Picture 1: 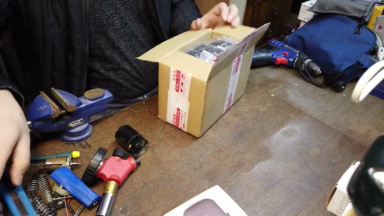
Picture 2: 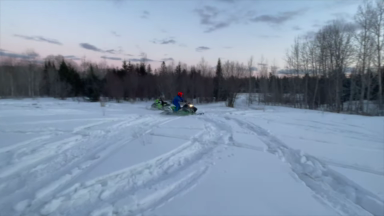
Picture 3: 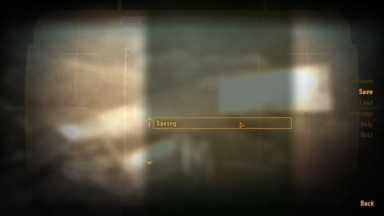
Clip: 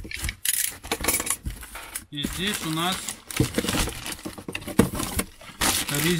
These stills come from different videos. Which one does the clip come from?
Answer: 1